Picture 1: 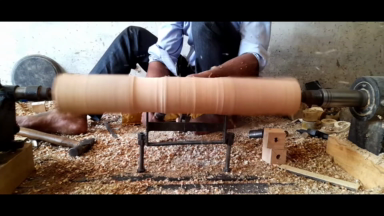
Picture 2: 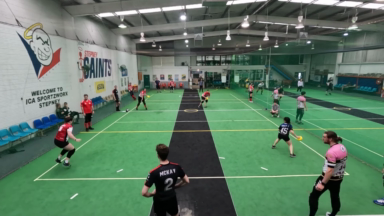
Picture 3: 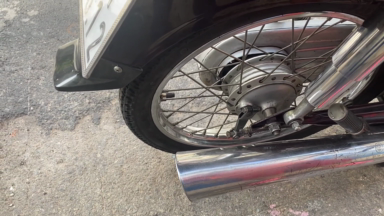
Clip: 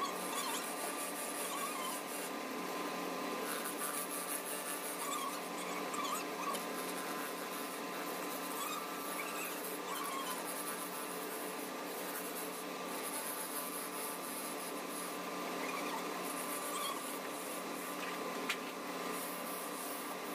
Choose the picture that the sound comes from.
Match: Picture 1